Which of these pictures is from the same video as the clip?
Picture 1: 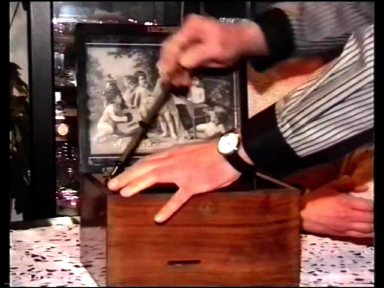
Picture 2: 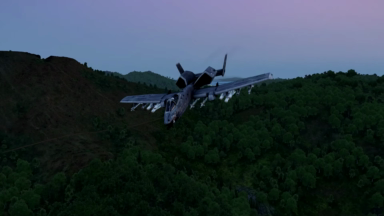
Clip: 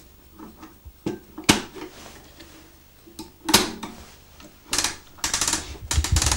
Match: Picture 1